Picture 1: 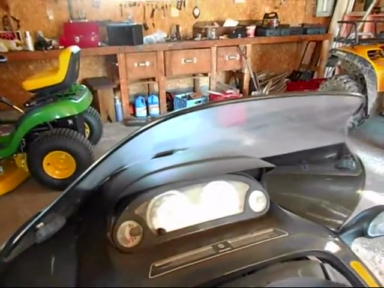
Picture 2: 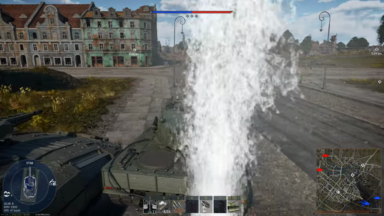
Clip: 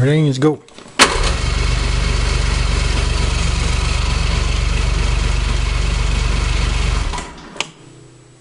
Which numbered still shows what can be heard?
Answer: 1